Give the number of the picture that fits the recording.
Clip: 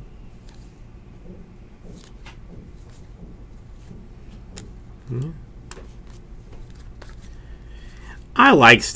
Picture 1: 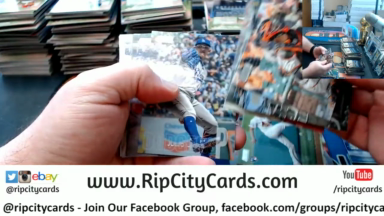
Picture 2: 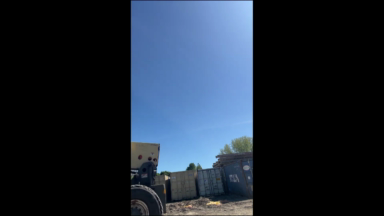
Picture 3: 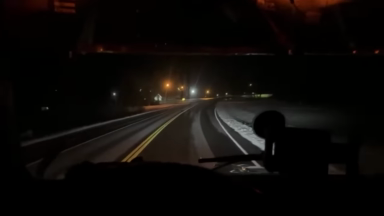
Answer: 1